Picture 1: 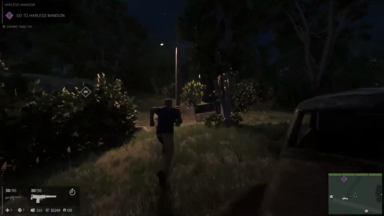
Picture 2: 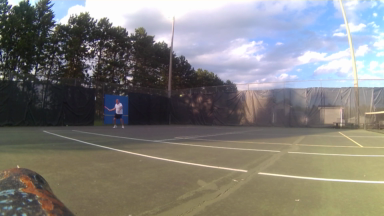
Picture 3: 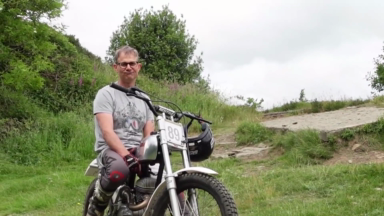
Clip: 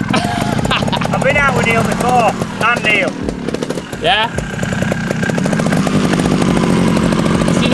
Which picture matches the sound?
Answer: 3